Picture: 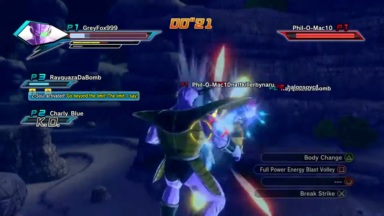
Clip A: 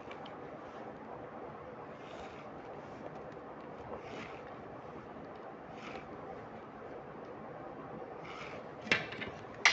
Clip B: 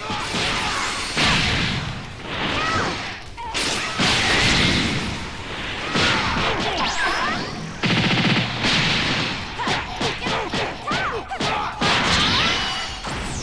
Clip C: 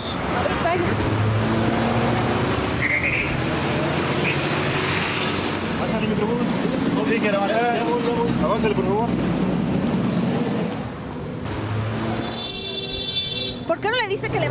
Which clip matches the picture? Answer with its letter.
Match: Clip B